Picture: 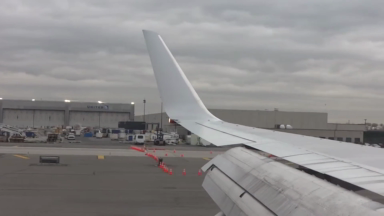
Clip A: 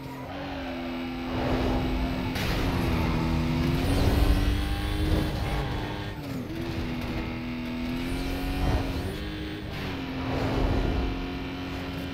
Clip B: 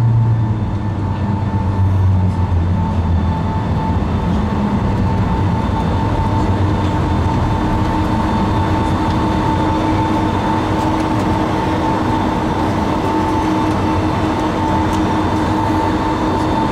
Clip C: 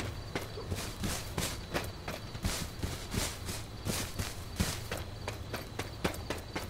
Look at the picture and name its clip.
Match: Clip B